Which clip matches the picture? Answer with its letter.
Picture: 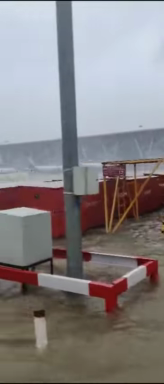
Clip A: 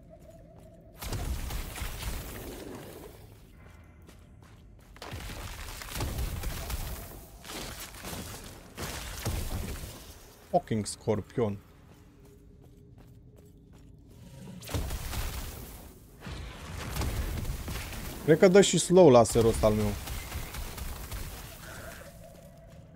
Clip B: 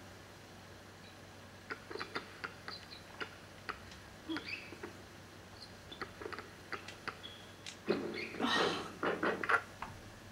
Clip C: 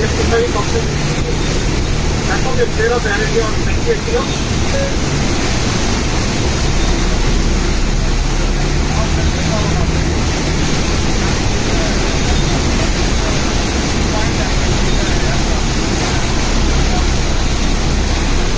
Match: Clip C